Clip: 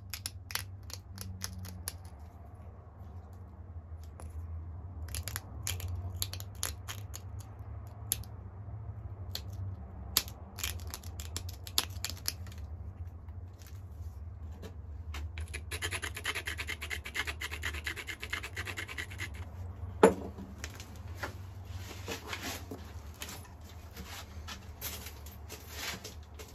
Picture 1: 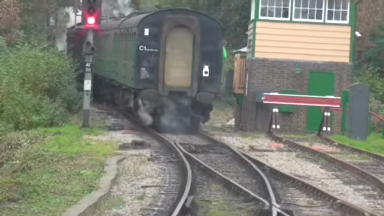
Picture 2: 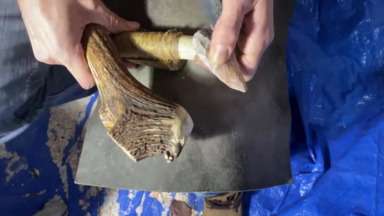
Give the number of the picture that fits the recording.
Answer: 2